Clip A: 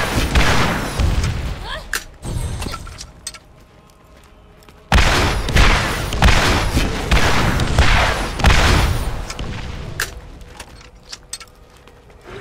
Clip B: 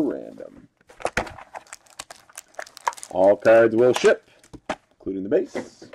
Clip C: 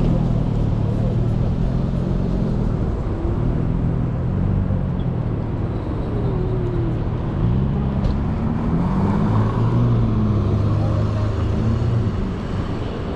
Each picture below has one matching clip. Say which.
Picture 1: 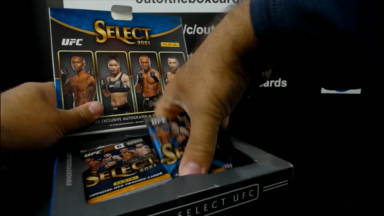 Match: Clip B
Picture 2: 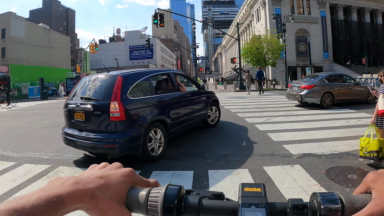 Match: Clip C